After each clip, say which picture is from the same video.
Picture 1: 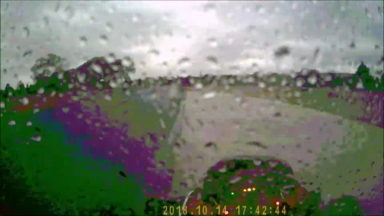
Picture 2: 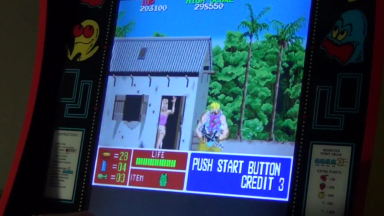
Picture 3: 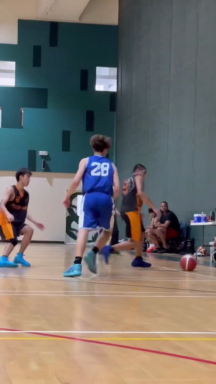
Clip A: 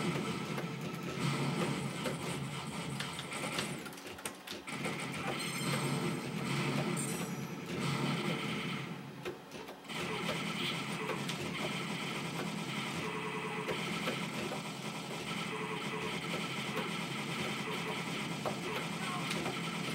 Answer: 2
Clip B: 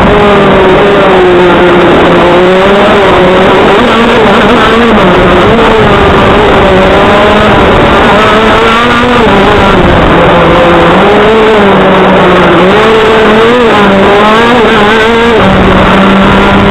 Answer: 1